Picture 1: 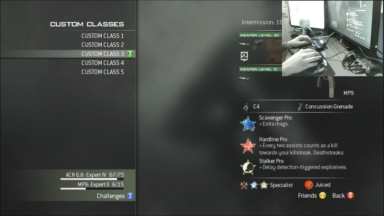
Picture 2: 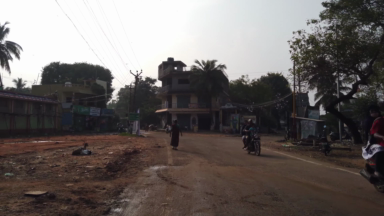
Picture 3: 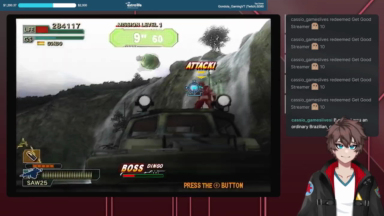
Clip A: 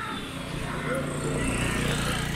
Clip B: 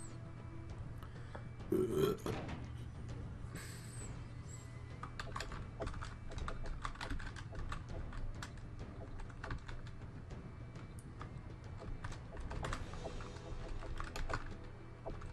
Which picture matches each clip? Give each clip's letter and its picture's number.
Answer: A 2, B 1